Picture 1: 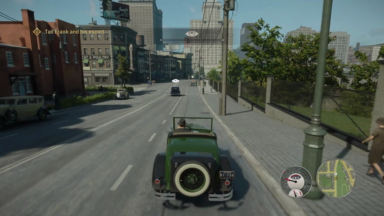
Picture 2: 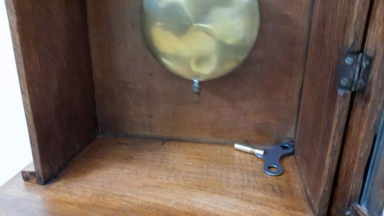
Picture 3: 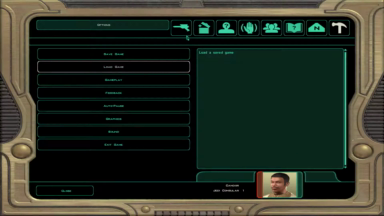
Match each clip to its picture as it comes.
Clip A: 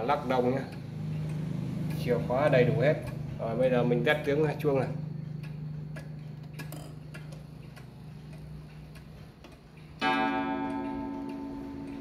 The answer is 2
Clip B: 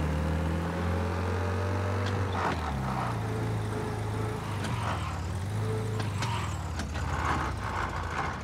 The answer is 1